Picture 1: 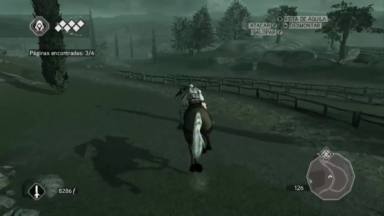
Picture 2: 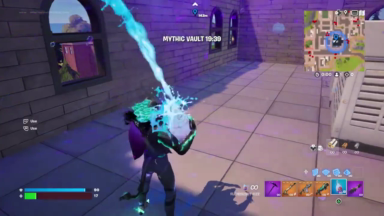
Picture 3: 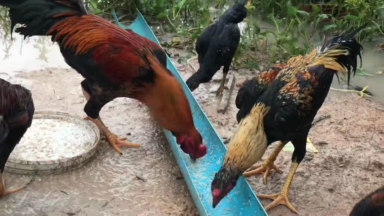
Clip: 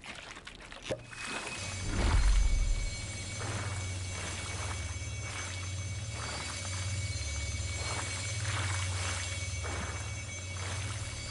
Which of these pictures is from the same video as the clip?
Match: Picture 2